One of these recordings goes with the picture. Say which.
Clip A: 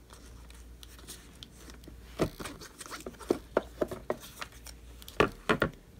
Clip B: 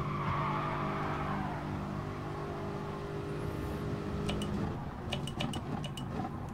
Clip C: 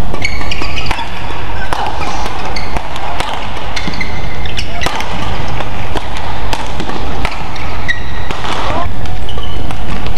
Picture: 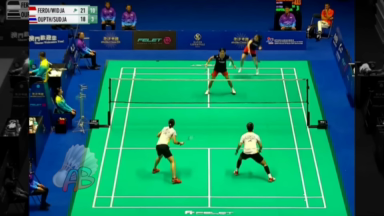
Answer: C